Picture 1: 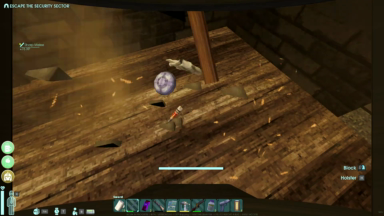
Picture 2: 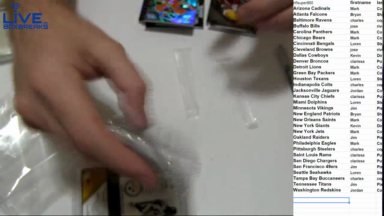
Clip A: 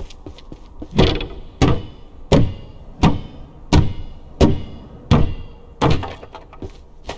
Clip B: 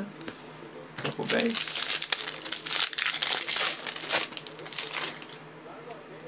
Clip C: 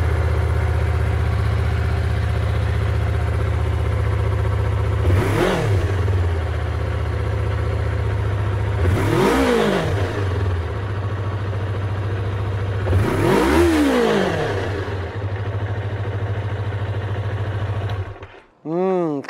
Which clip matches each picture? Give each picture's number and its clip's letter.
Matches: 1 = A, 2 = B